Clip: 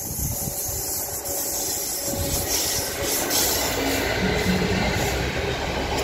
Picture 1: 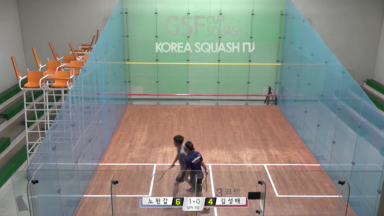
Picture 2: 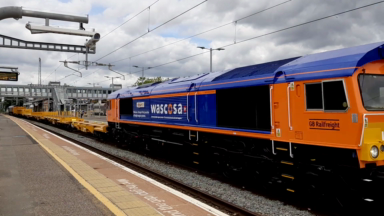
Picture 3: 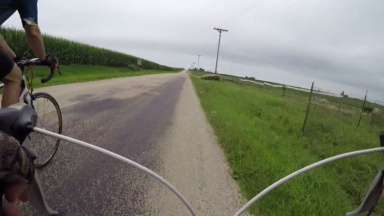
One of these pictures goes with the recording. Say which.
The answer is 2